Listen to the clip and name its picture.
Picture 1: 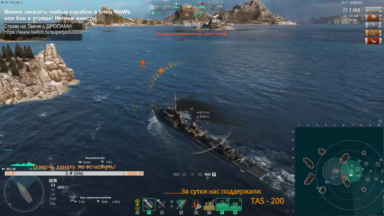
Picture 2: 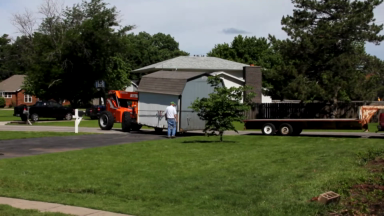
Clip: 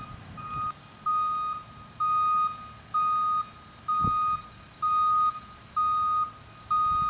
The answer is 2